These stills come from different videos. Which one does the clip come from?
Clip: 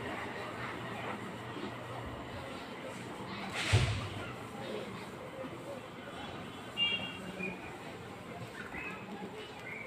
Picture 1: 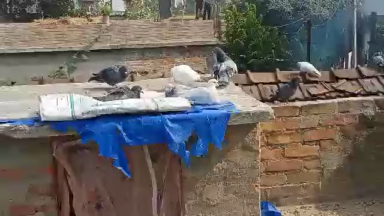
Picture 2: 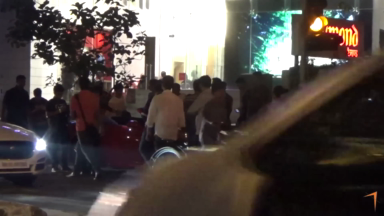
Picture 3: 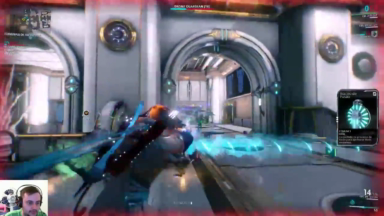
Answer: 1